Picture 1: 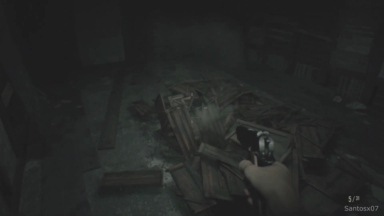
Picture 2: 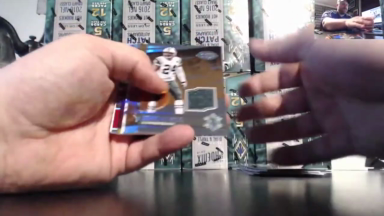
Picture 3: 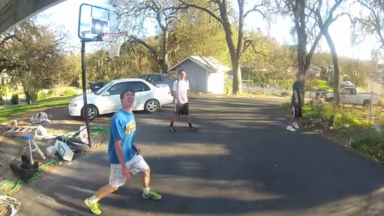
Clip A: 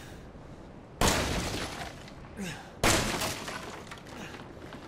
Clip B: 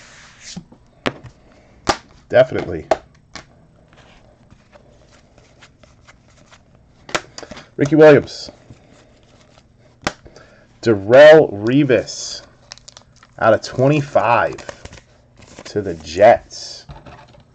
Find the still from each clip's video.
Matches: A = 1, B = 2